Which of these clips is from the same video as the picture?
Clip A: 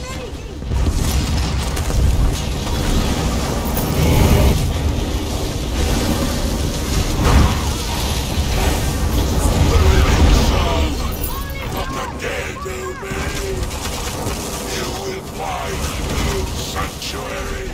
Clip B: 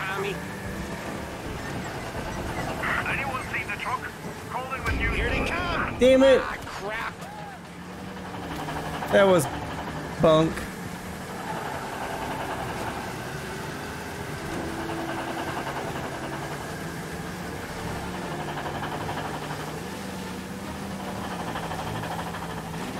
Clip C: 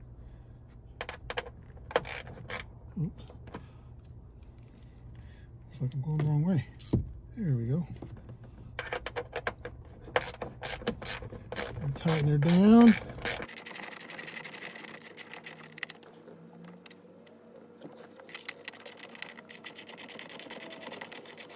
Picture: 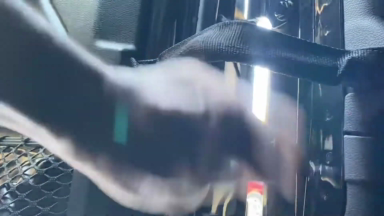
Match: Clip C